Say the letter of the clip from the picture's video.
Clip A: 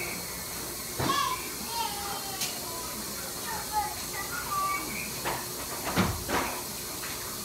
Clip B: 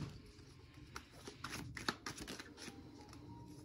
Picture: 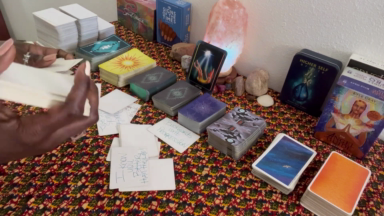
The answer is B